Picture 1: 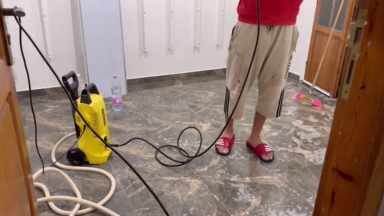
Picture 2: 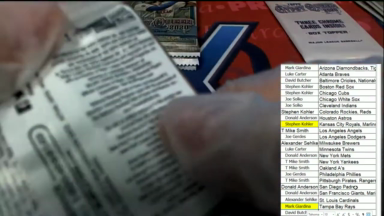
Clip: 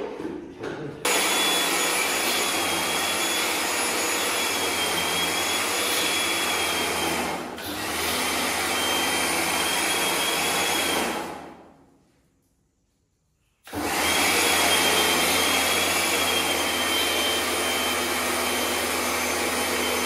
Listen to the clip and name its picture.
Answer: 1